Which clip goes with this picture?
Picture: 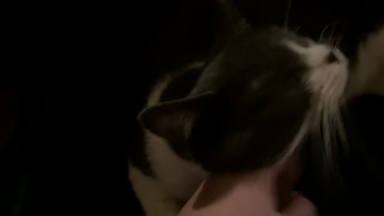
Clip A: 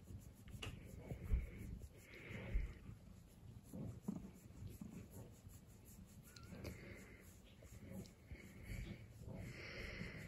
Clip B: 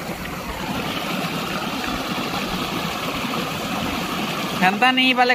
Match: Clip A